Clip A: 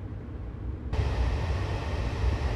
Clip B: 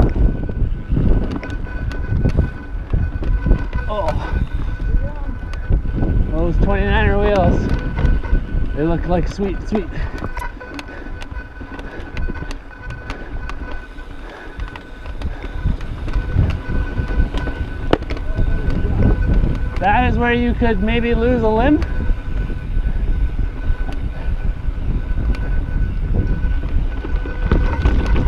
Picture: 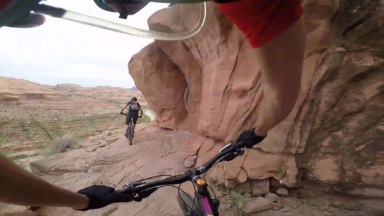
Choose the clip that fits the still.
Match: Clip B